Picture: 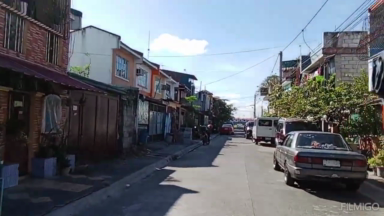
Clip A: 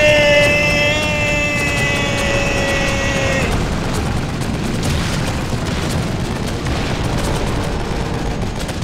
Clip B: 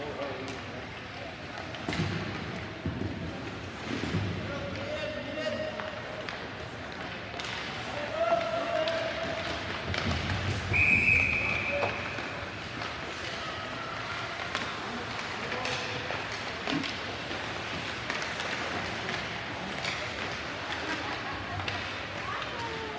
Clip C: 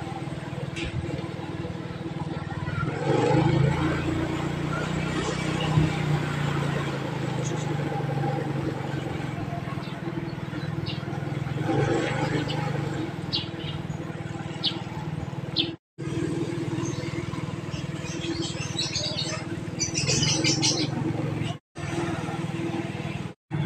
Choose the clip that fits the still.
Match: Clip C